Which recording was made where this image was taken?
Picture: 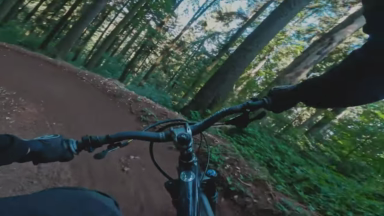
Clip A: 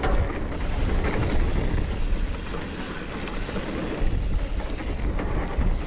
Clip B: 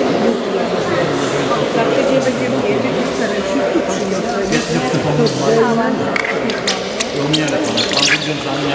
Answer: A